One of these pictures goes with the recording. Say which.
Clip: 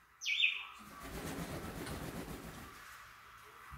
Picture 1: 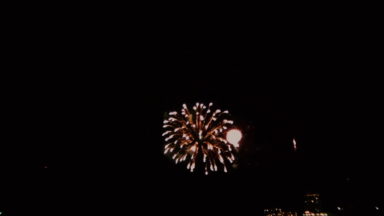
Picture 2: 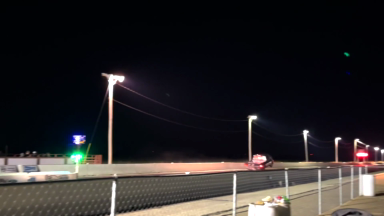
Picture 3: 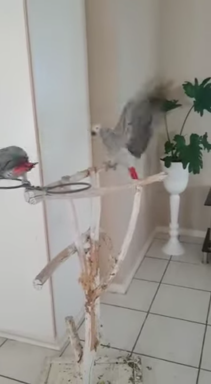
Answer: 3